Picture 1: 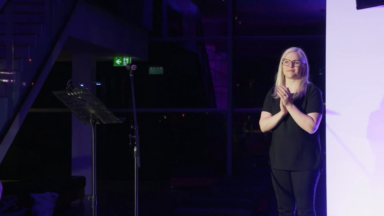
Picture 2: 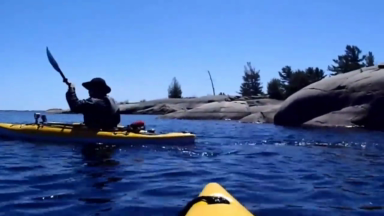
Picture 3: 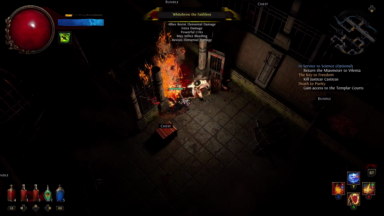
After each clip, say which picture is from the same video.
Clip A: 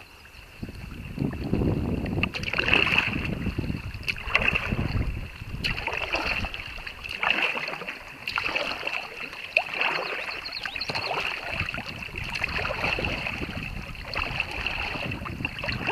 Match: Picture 2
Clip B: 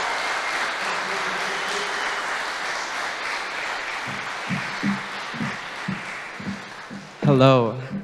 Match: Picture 1